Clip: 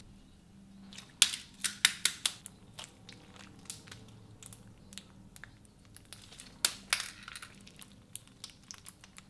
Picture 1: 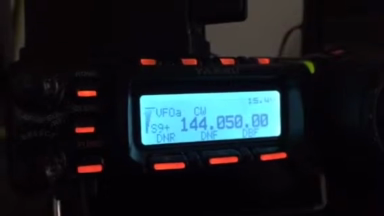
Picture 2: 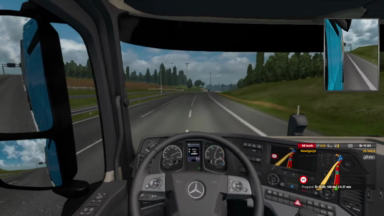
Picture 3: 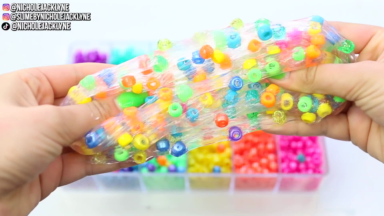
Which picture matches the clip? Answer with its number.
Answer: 3